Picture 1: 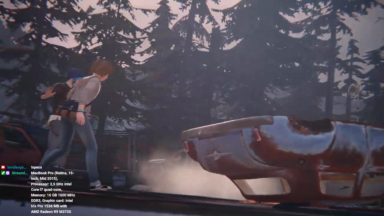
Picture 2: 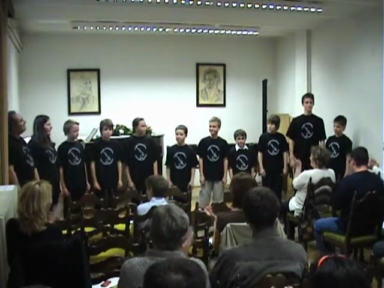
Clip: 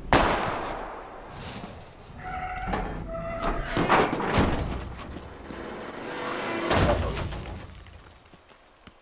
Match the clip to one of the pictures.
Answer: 1